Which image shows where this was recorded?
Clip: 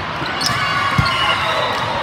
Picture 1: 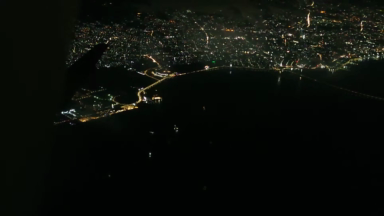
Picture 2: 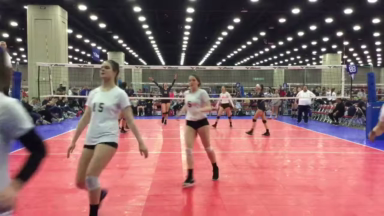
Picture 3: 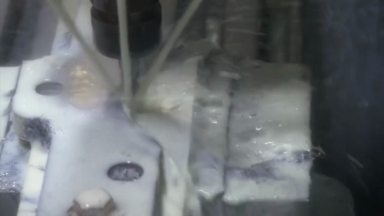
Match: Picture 2